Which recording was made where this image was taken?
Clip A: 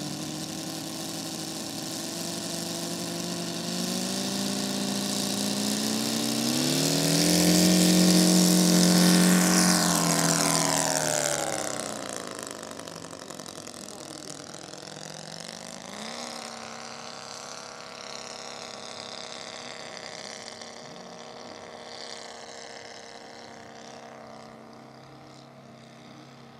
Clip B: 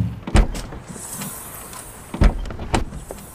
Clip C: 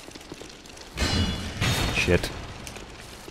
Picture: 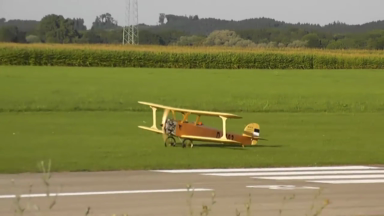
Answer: A